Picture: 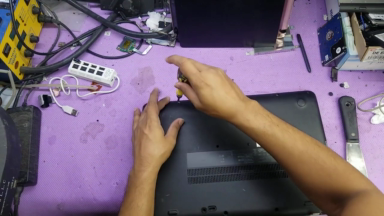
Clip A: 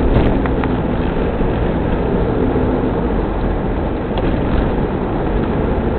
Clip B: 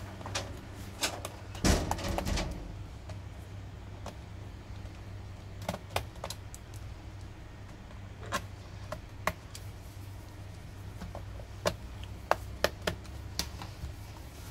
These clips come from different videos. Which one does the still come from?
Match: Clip B